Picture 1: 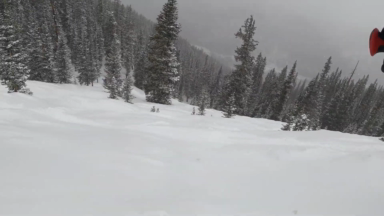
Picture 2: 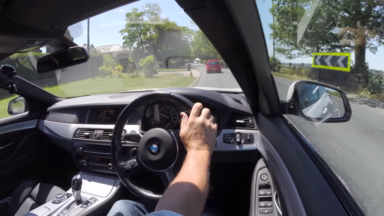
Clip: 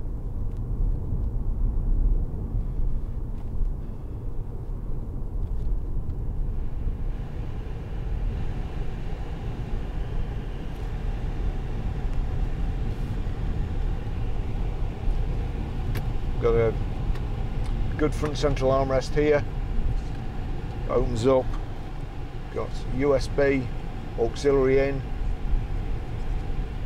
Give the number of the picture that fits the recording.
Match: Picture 2